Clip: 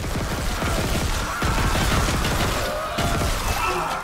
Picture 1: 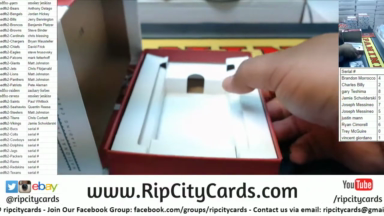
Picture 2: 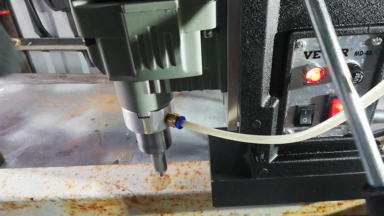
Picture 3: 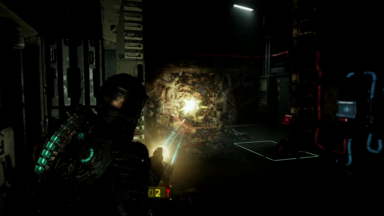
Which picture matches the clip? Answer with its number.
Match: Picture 3